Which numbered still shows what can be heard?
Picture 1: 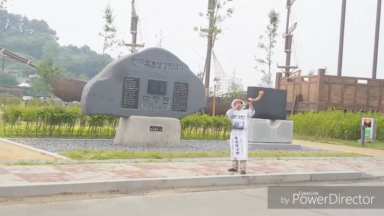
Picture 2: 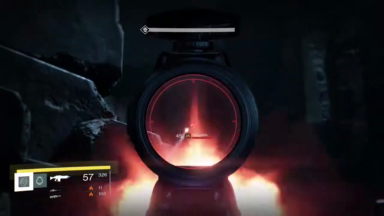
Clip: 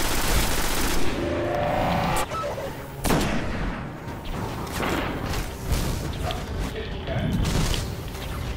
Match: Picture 2